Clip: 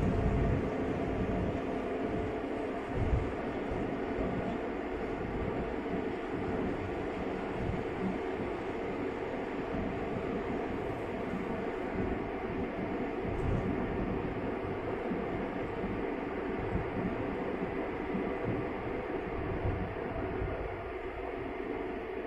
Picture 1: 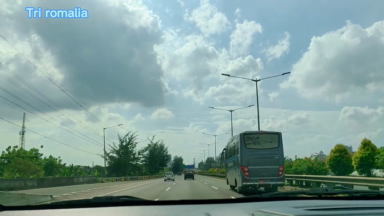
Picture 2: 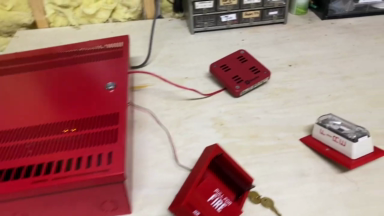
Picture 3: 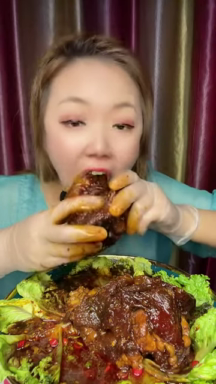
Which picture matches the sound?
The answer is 1